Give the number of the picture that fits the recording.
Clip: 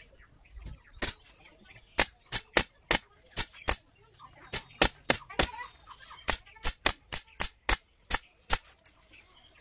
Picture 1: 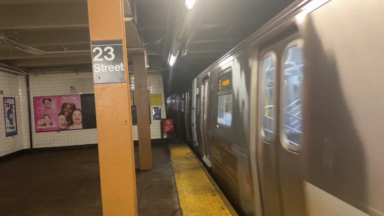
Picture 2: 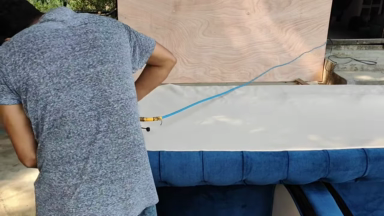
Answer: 2